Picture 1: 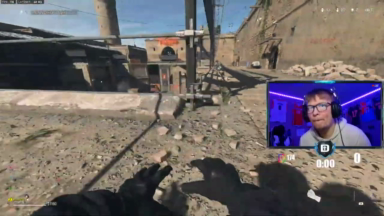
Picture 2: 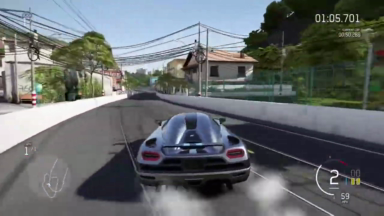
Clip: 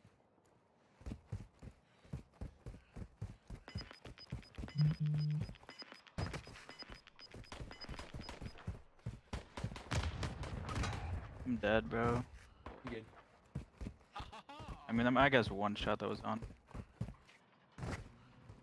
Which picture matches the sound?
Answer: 1